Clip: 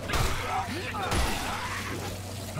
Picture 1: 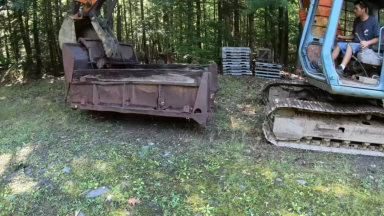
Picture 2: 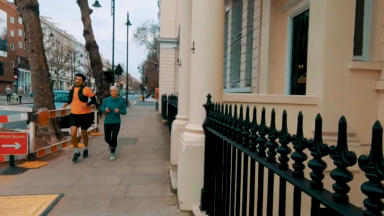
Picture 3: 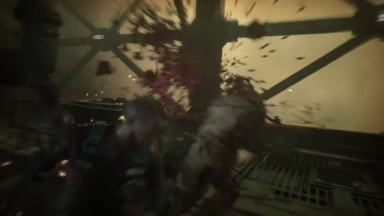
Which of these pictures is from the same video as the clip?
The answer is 3